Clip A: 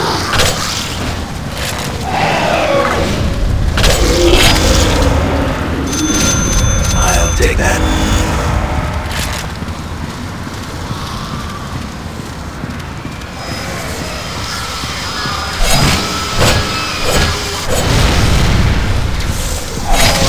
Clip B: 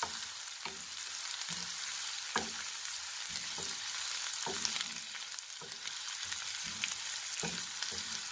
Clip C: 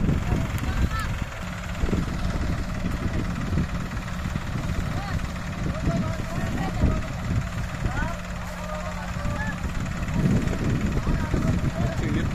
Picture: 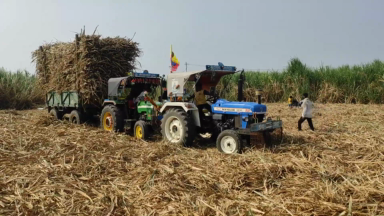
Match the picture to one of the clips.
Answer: C